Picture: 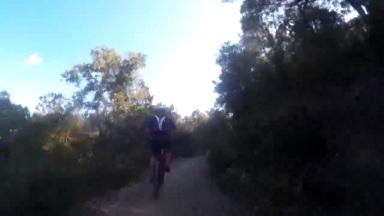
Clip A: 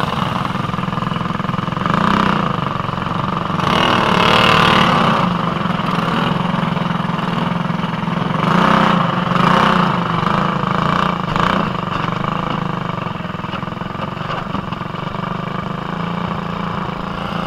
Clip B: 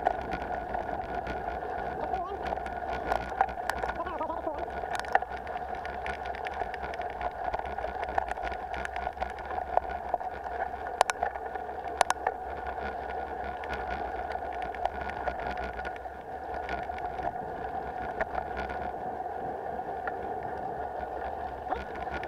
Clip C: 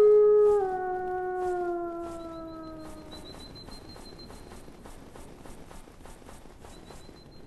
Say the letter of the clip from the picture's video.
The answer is B